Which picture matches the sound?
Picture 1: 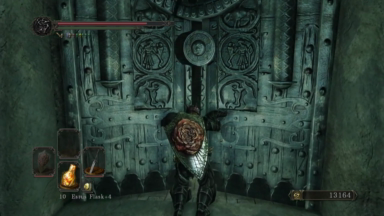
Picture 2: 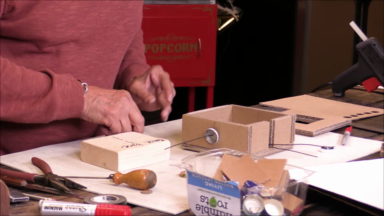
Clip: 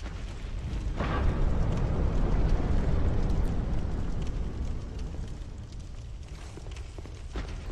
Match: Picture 1